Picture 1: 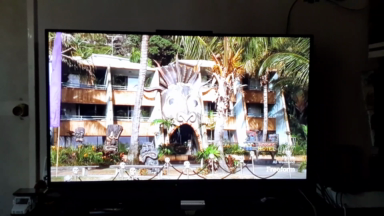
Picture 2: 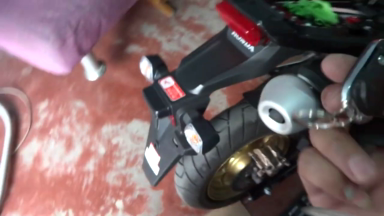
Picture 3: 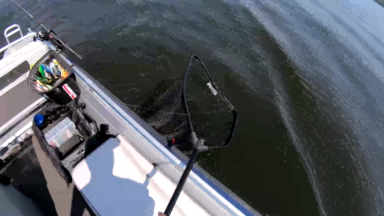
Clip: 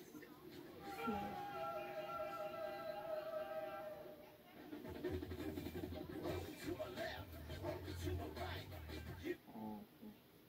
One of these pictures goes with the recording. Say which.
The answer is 1